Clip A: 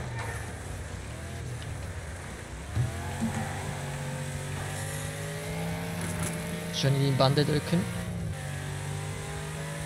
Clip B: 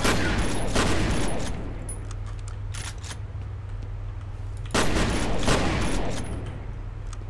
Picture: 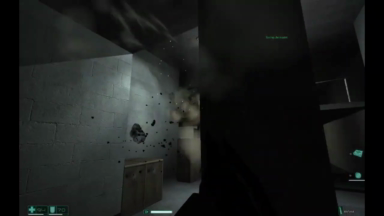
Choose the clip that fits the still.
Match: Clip B